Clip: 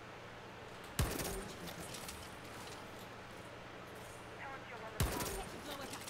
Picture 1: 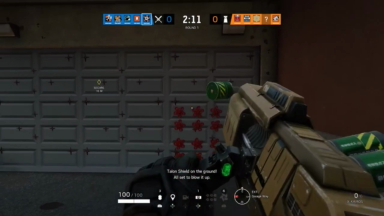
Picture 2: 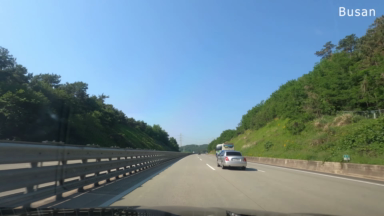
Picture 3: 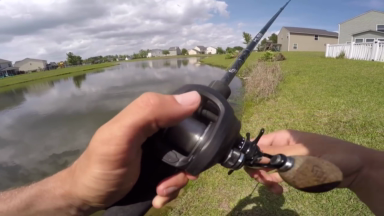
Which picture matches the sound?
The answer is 1